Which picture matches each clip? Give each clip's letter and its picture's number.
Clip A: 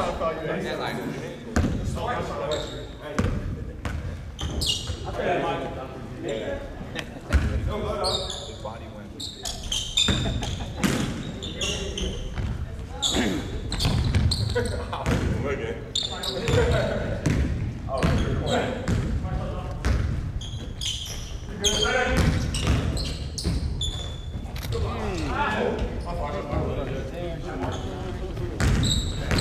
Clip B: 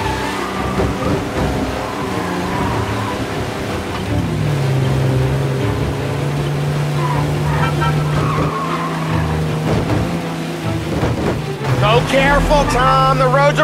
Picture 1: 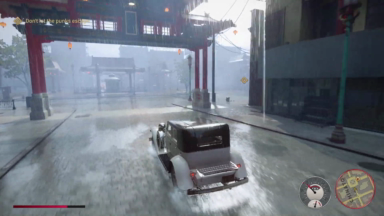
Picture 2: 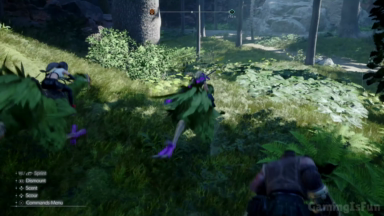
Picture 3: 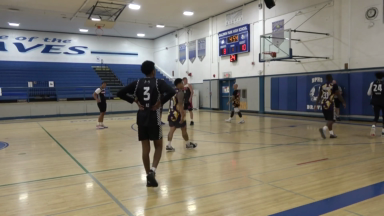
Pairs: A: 3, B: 1